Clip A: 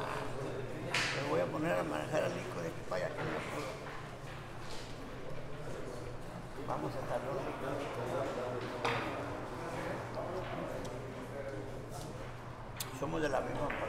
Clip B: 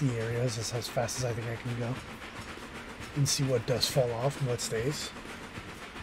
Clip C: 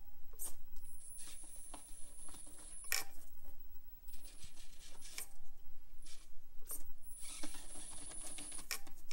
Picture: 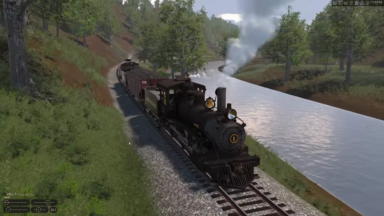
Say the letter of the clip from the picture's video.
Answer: B